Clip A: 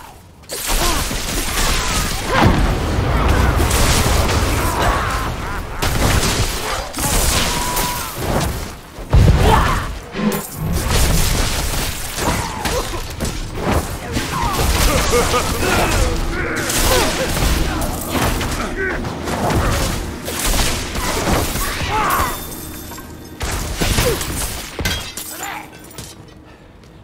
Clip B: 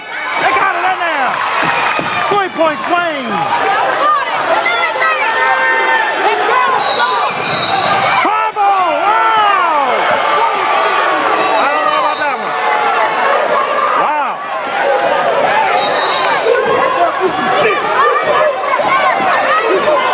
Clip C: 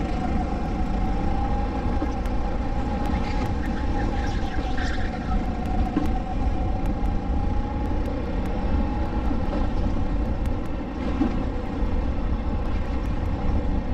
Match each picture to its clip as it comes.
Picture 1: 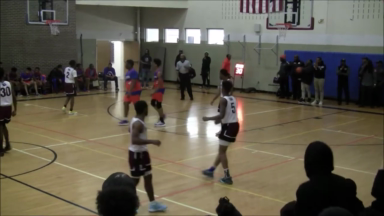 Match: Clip B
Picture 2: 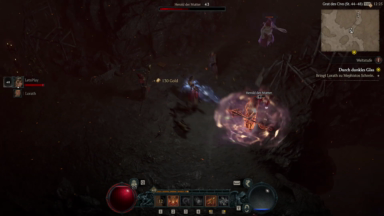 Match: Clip A